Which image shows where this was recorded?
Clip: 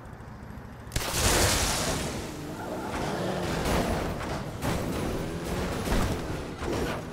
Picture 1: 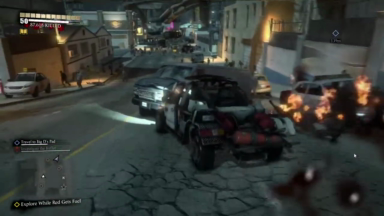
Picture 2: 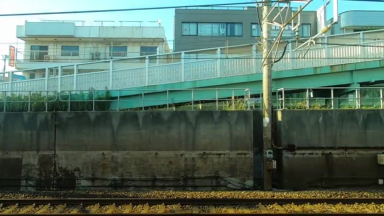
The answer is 1